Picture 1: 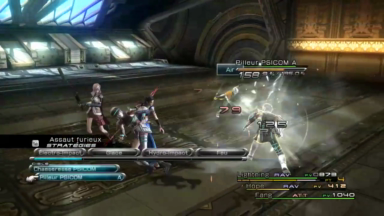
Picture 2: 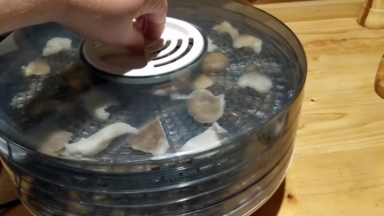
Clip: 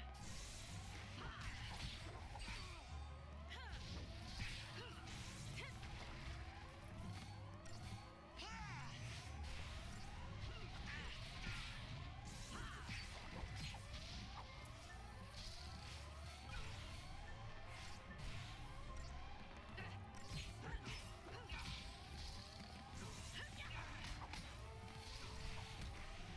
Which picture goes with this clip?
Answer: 1